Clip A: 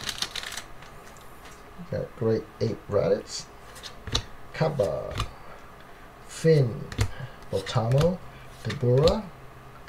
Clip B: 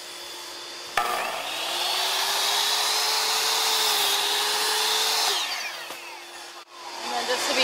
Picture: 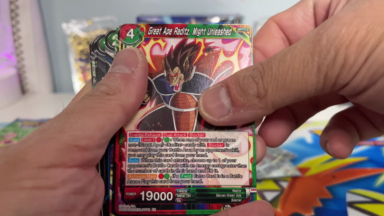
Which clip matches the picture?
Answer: A